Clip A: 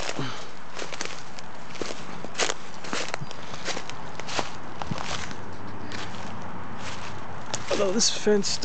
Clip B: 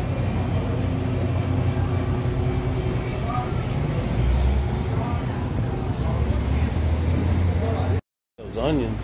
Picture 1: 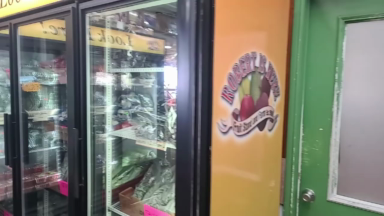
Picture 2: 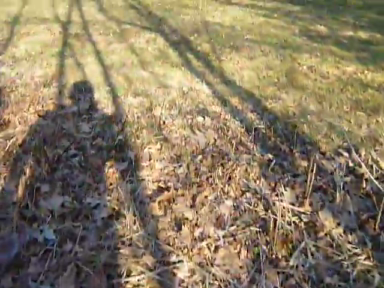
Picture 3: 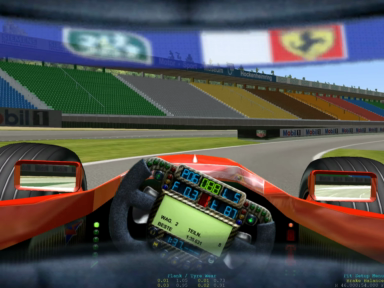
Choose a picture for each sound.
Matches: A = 2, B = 1